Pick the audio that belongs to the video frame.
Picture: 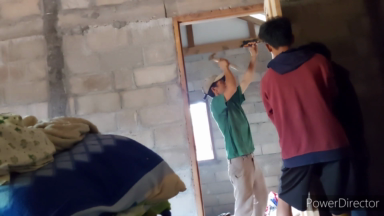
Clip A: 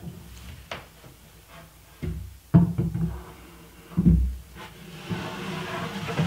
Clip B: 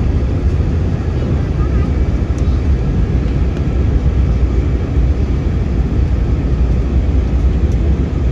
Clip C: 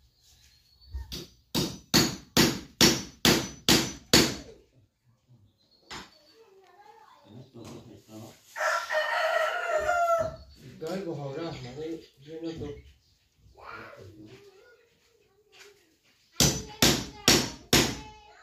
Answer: C